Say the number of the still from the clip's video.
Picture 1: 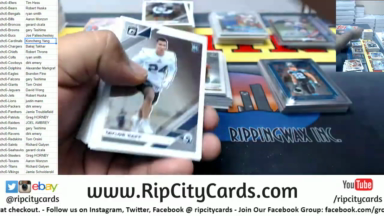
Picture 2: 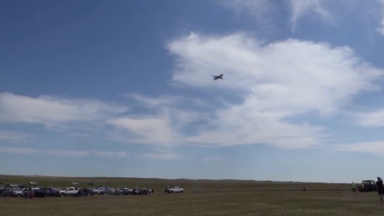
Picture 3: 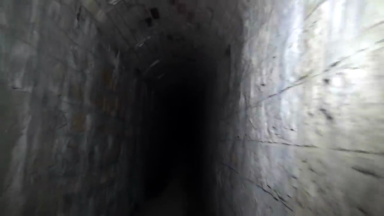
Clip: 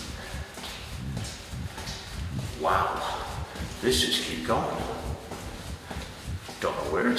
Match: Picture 3